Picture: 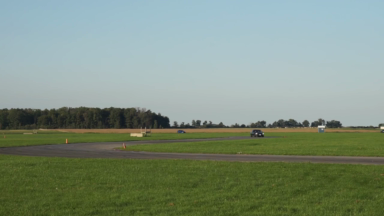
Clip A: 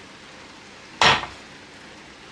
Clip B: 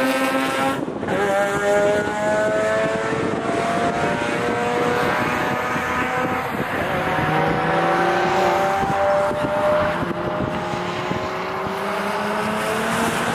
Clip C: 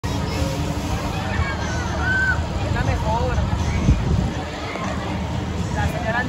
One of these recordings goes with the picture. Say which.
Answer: B